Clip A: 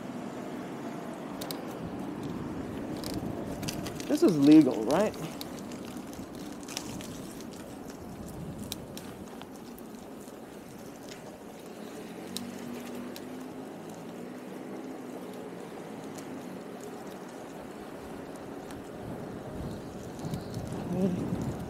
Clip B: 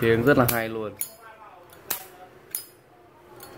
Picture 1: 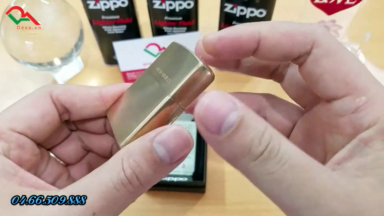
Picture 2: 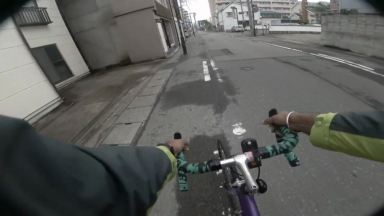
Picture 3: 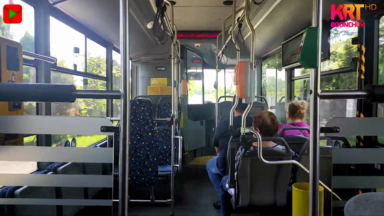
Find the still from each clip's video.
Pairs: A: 2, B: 1